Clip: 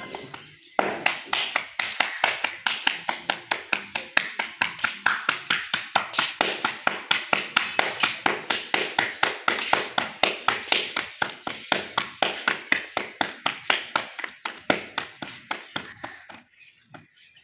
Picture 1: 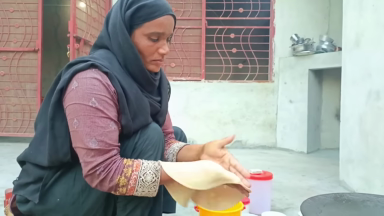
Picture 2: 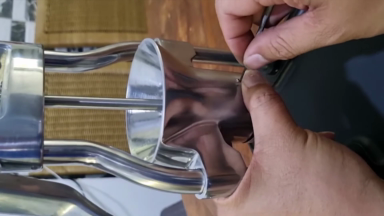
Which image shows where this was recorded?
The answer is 1